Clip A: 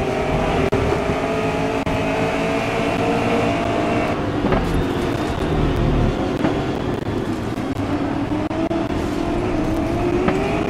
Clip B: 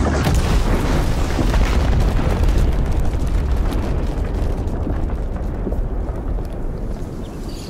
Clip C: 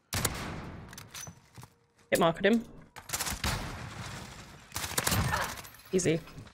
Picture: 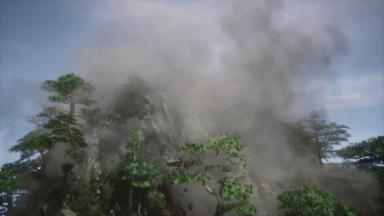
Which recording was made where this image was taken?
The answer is B